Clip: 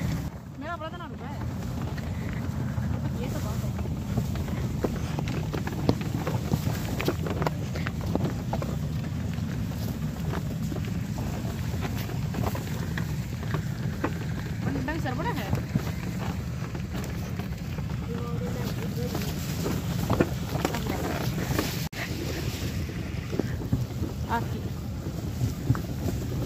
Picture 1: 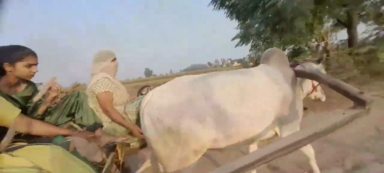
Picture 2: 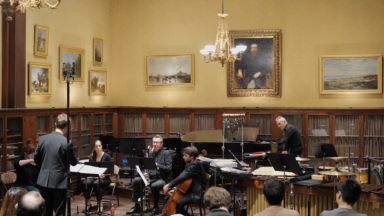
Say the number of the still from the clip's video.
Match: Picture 1